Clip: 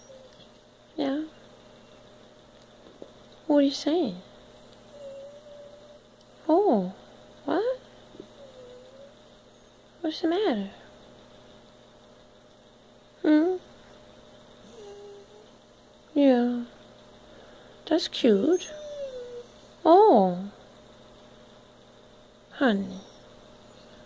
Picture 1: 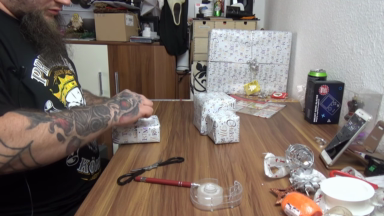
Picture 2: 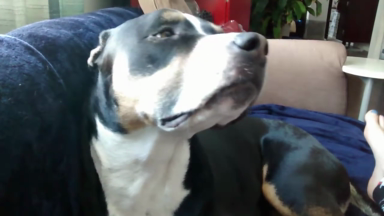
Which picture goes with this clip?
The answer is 2